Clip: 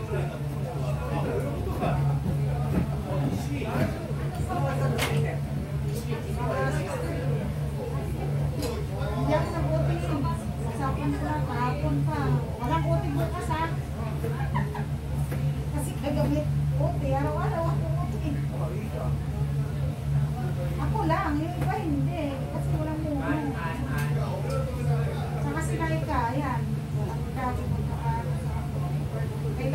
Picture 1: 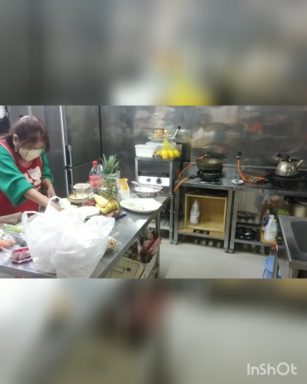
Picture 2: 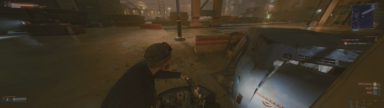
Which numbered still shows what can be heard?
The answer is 1